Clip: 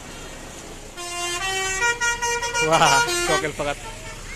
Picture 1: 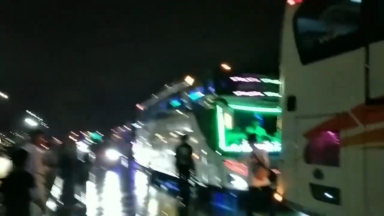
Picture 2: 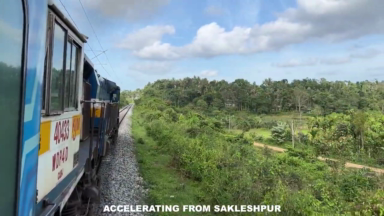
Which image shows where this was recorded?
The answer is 1